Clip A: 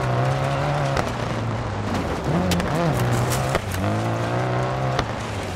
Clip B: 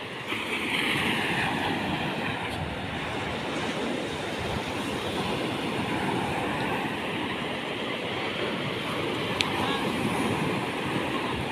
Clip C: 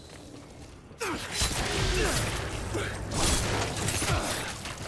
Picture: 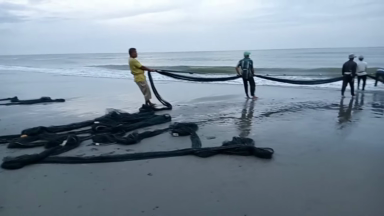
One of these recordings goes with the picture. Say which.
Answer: B